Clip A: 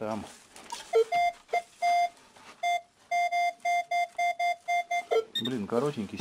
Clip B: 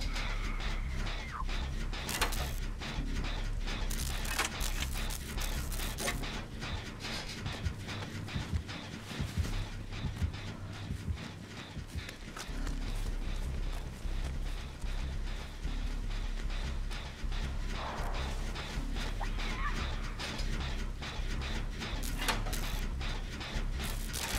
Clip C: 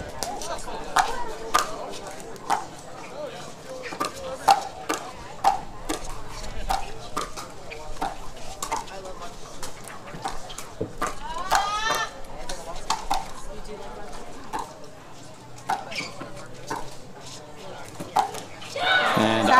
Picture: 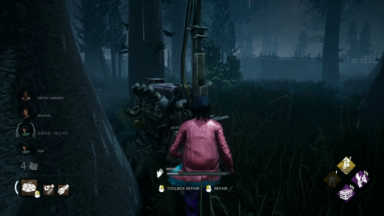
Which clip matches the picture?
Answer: B